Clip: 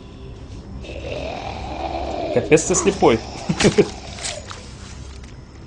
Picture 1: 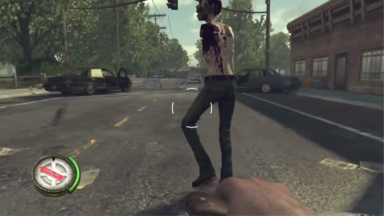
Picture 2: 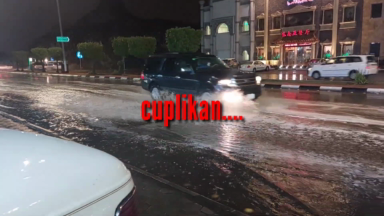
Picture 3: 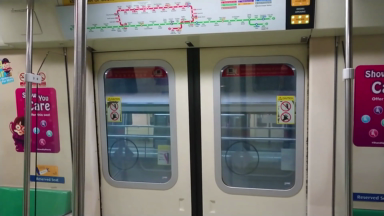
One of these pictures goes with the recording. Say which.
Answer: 1